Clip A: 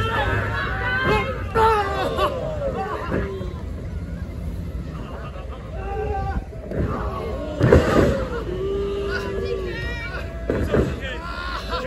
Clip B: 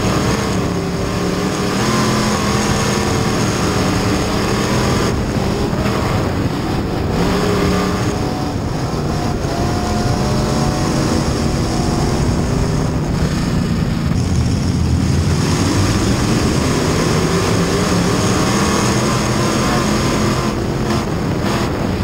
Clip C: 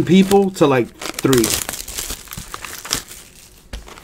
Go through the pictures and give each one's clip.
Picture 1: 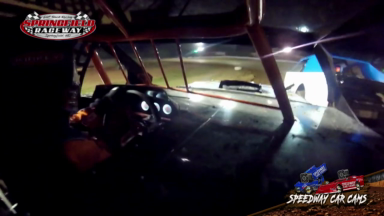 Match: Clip B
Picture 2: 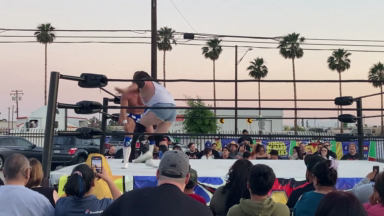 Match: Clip A